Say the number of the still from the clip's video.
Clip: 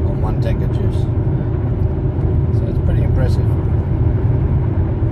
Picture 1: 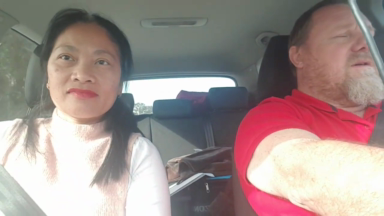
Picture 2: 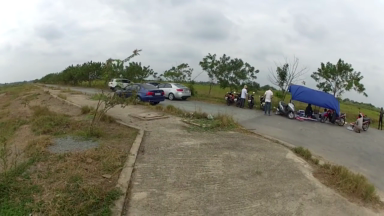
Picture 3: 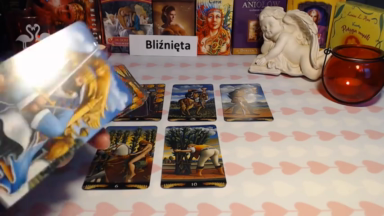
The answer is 1